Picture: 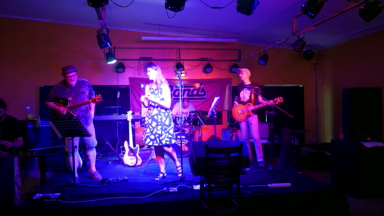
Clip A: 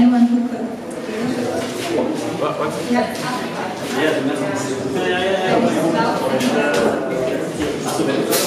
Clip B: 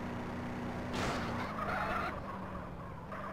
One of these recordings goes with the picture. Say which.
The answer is A